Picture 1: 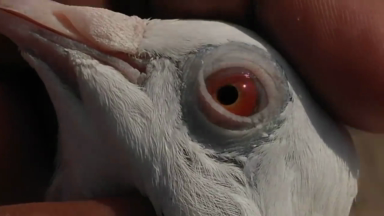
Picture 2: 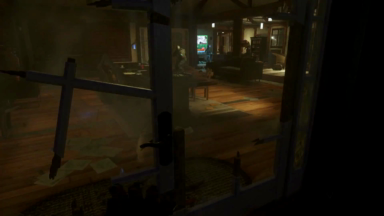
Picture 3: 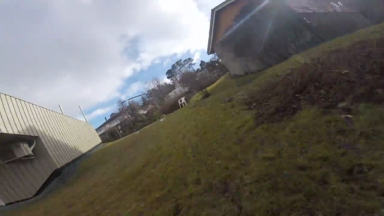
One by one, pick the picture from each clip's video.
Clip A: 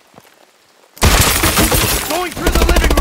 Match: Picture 2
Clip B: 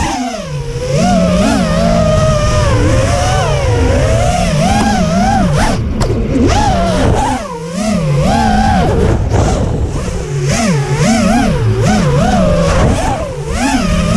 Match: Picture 3